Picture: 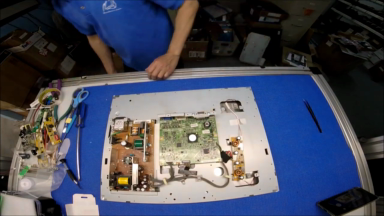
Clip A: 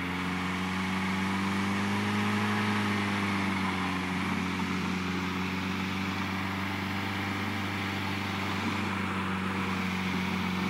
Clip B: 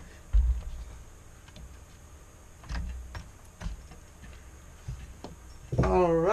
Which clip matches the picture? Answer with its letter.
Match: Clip B